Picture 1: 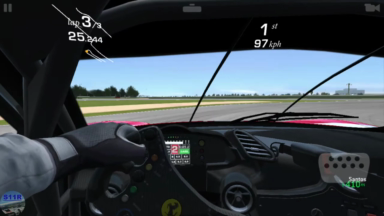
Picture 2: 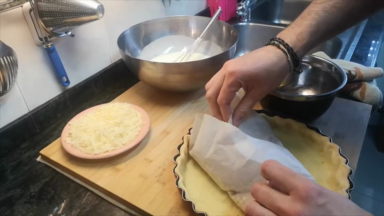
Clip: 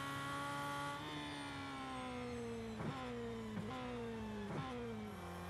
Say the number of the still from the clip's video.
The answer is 1